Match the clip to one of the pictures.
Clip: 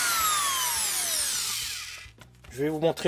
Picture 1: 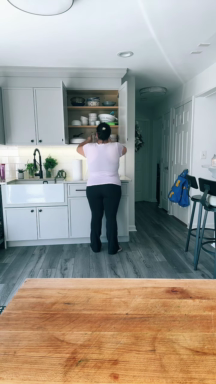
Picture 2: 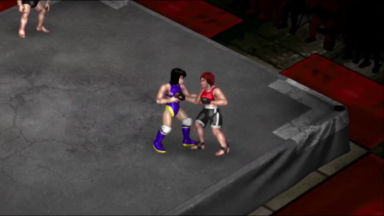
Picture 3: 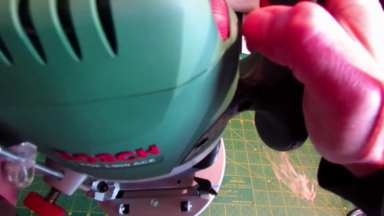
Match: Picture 3